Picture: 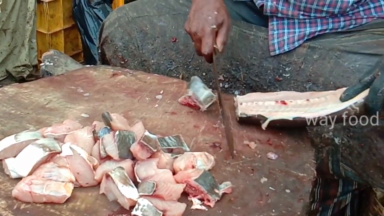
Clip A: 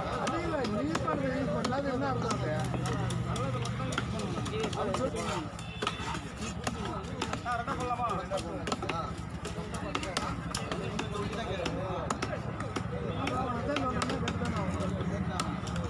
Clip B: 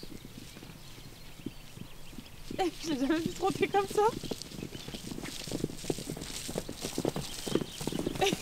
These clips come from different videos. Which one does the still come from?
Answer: A